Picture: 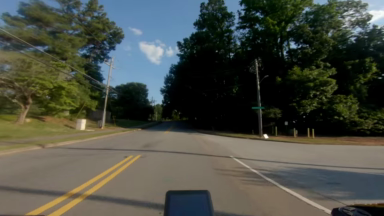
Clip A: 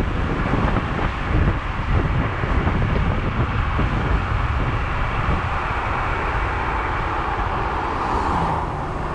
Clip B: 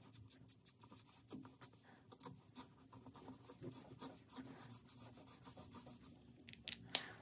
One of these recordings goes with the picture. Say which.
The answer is A